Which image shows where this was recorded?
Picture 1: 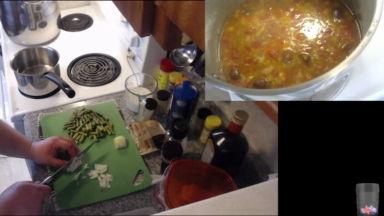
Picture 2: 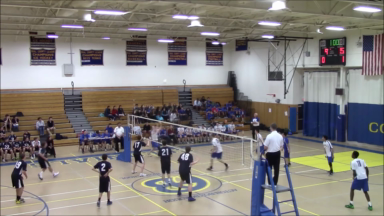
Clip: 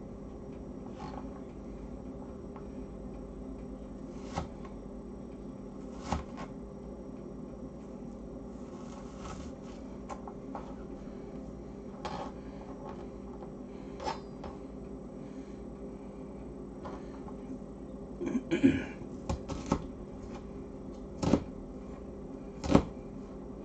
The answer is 1